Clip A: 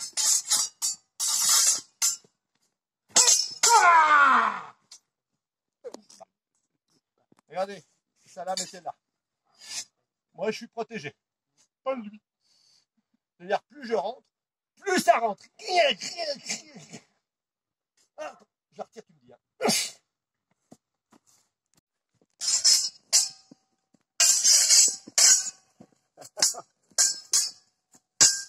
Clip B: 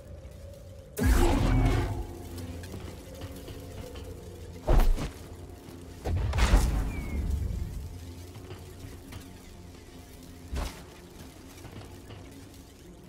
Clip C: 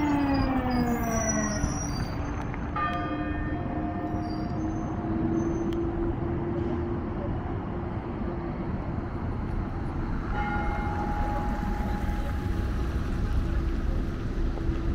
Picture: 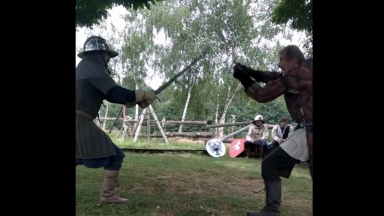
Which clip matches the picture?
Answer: A